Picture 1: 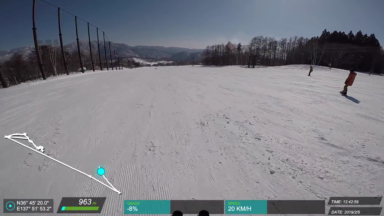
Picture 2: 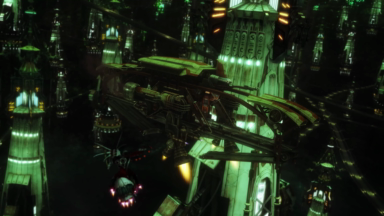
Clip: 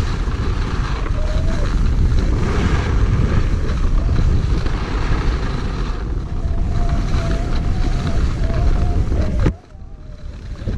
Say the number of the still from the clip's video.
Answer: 1